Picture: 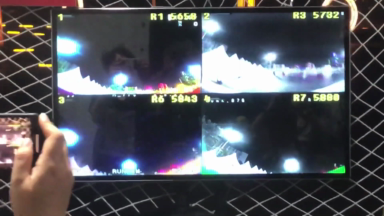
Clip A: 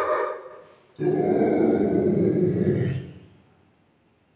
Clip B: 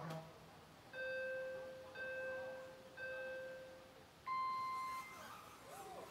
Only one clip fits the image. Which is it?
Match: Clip B